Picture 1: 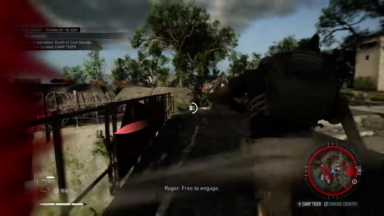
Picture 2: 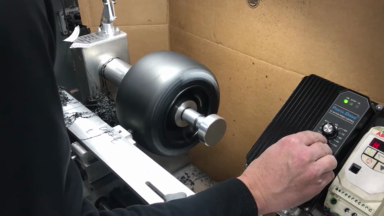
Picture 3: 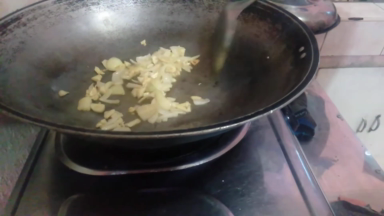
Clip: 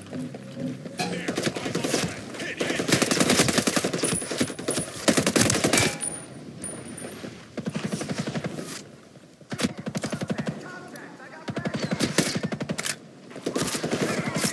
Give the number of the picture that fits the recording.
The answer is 1